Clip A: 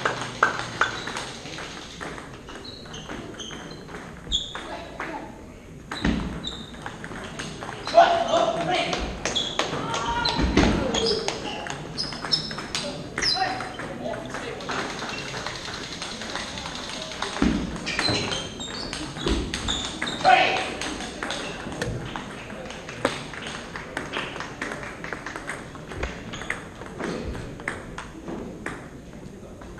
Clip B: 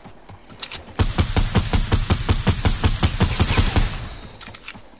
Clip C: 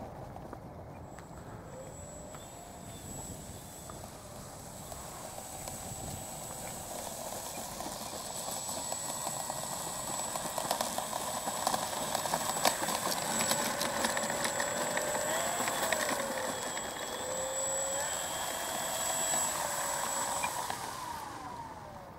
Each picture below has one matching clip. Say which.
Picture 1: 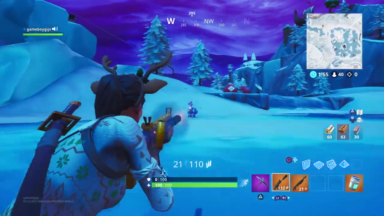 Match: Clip B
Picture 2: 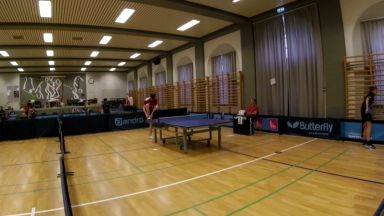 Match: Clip A